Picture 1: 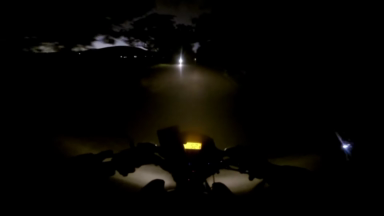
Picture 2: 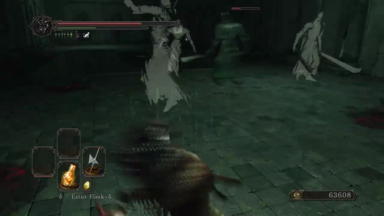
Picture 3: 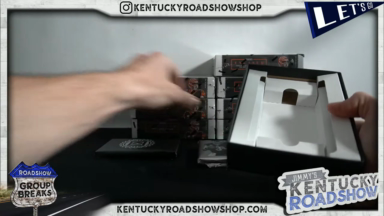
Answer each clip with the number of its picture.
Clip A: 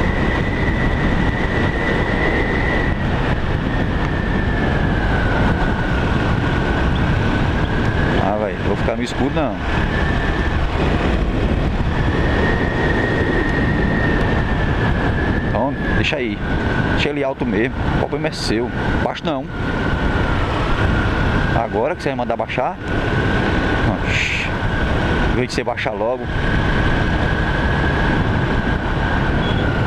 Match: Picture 1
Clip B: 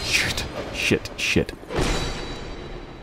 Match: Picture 2